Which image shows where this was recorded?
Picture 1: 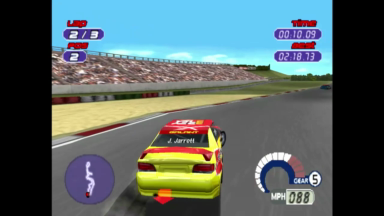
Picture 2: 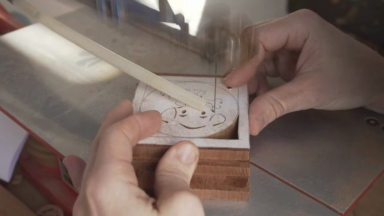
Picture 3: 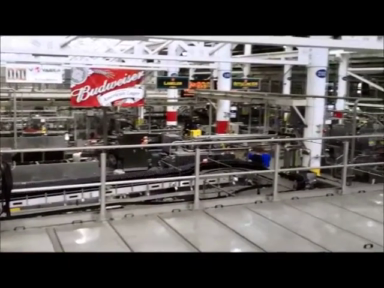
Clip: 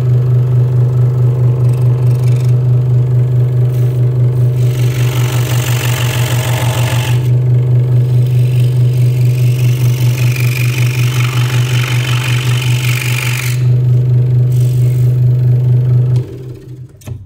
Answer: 2